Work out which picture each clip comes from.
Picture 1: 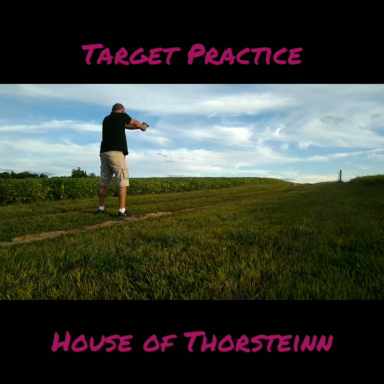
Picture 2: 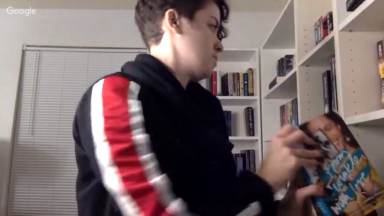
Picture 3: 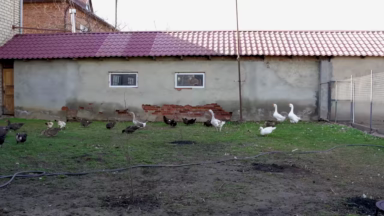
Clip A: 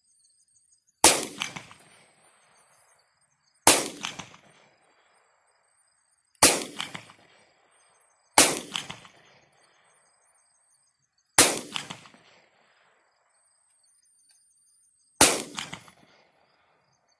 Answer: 1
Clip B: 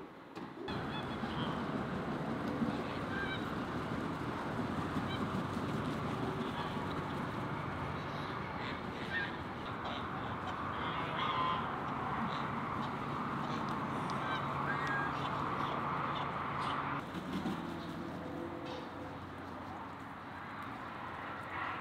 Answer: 3